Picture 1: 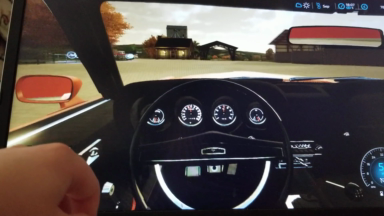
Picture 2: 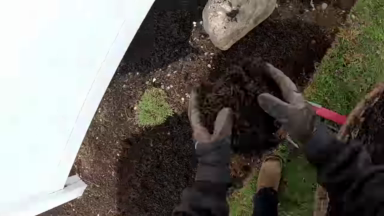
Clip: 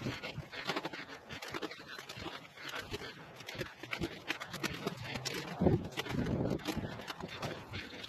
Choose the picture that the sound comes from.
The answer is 2